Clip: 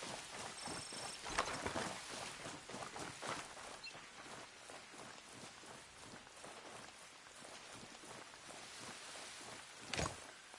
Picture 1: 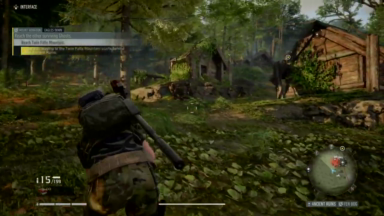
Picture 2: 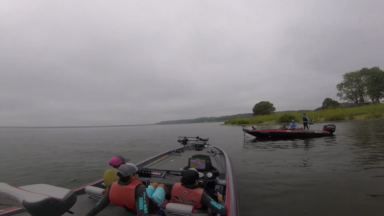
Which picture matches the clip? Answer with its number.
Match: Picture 1